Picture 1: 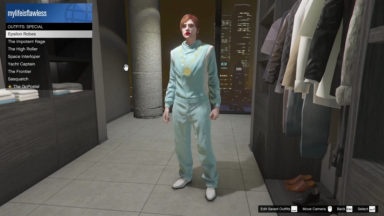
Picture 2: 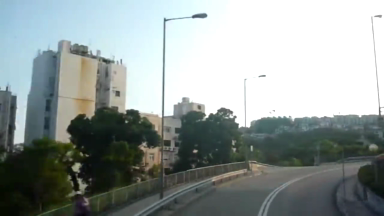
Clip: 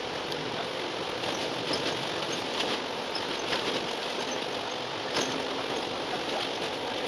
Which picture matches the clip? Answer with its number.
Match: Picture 2